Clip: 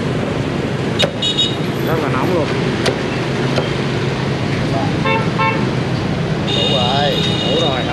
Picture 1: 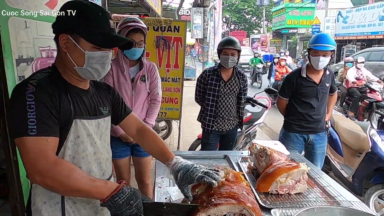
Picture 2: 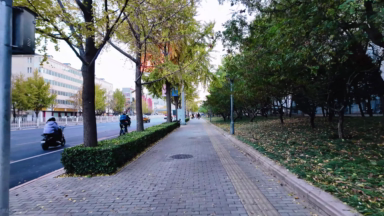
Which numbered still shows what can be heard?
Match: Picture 1